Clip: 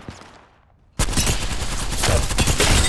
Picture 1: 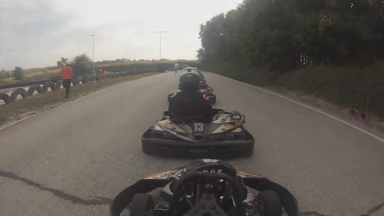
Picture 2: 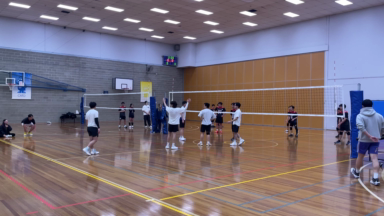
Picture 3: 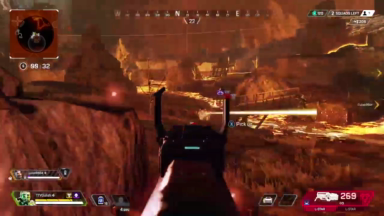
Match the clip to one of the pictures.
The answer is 3